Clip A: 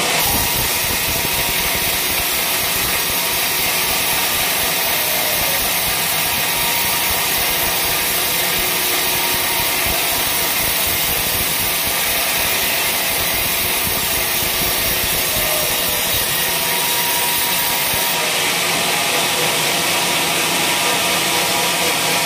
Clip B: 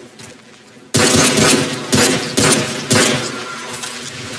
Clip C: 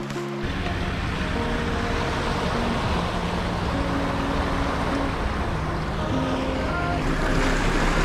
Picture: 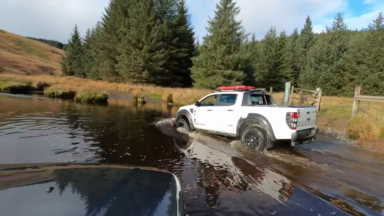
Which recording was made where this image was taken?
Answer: C